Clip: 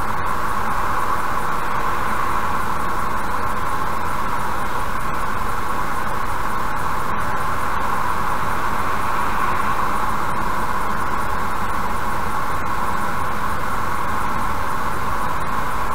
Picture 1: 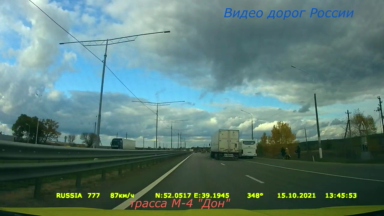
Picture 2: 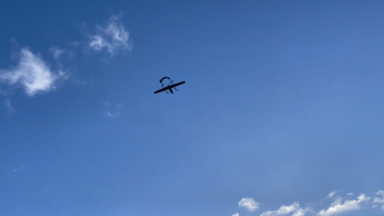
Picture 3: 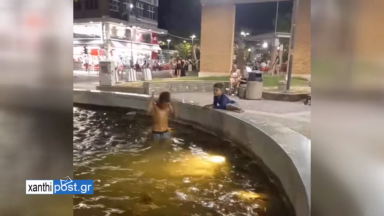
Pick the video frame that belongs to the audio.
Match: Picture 1